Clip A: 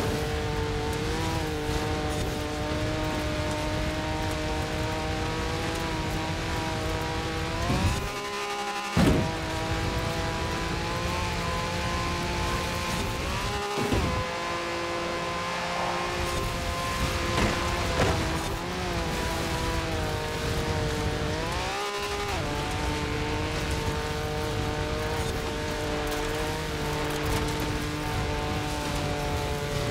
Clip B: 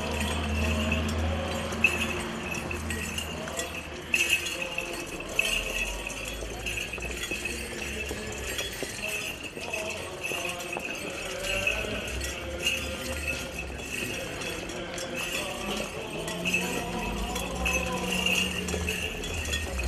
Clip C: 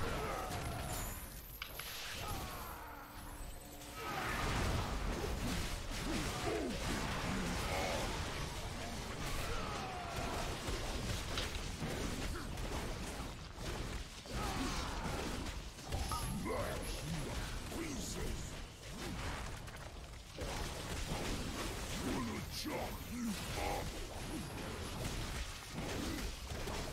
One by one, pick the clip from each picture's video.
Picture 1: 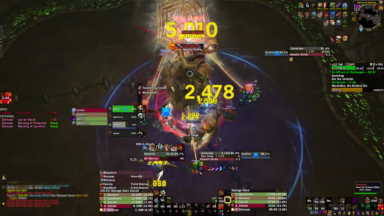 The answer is C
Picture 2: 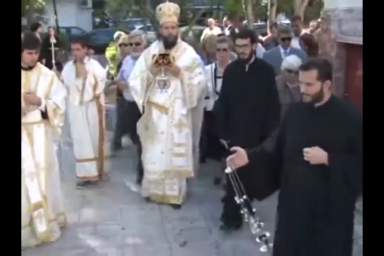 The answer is B